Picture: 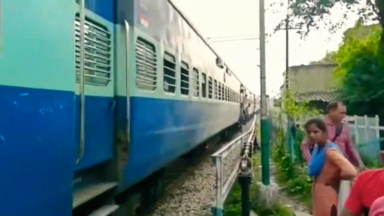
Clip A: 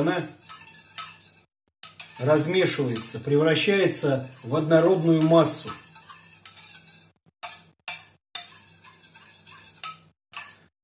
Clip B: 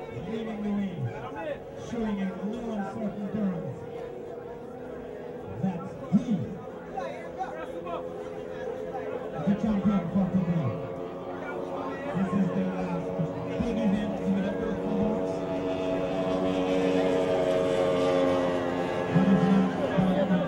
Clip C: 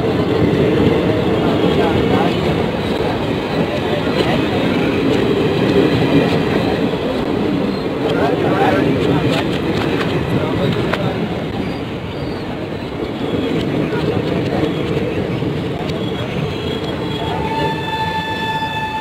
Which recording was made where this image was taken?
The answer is C